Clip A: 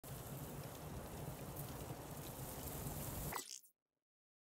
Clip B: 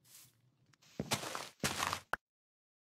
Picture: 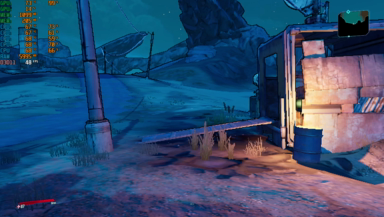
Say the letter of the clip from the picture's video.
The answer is A